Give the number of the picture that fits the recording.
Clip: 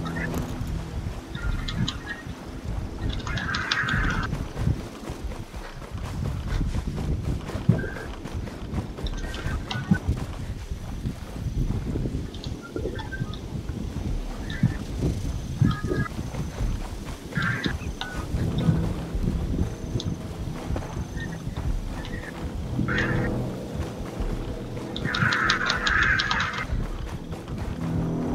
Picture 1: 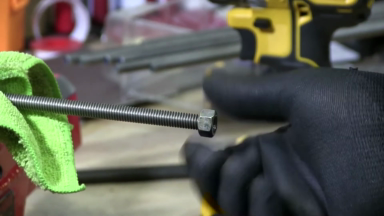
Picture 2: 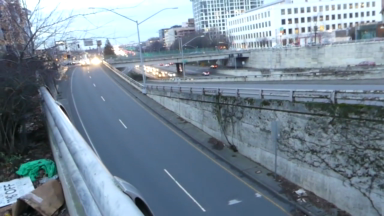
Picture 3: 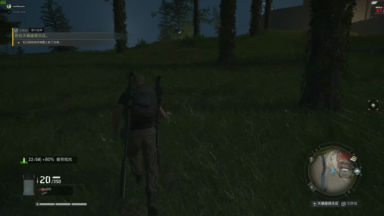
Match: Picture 3